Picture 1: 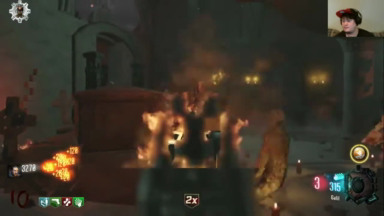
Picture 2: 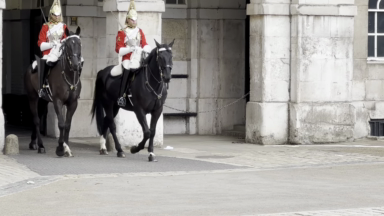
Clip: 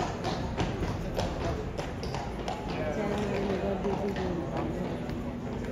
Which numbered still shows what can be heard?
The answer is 2